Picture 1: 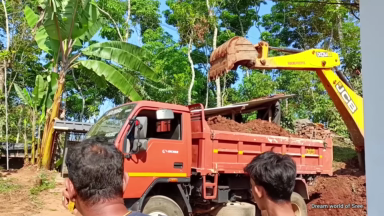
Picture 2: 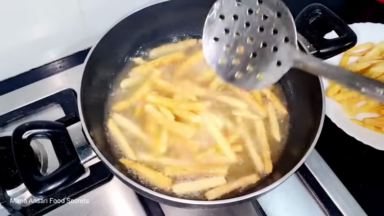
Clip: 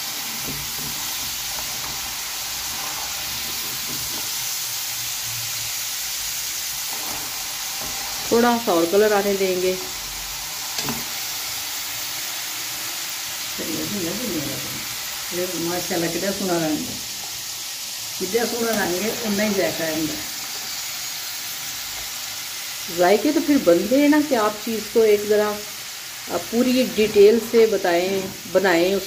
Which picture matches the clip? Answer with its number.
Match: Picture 2